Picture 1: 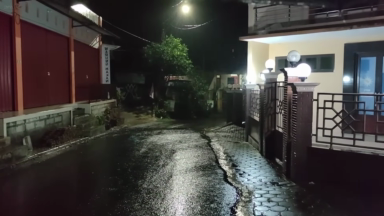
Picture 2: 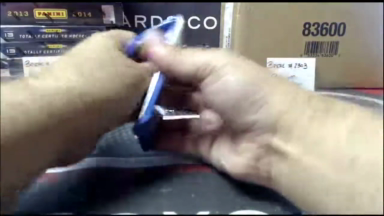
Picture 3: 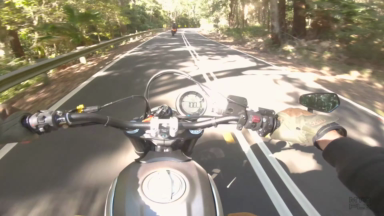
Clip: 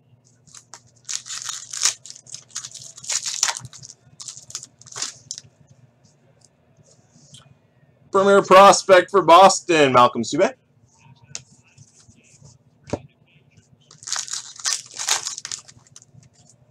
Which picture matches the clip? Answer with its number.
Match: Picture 2